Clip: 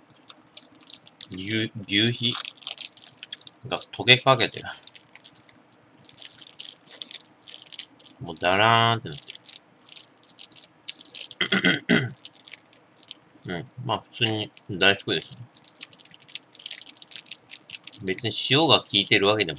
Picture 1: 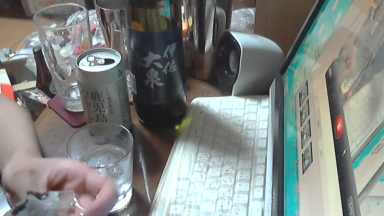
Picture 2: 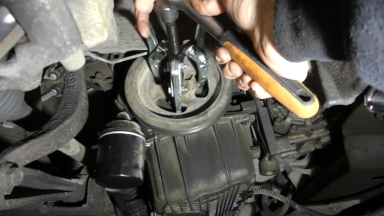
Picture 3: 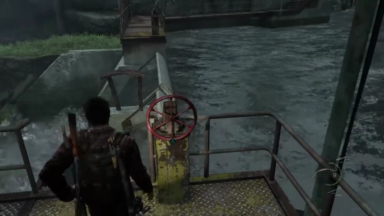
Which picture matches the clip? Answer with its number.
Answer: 1